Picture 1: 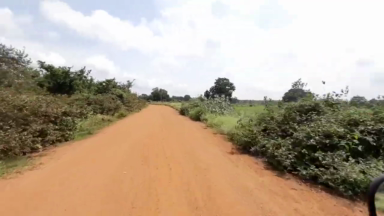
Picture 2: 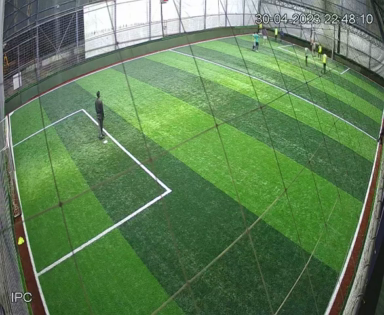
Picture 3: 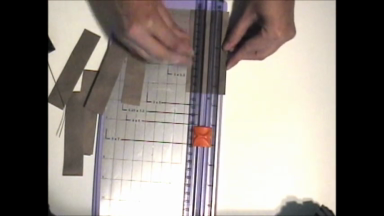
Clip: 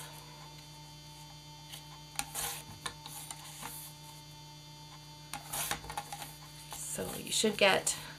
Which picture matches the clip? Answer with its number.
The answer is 3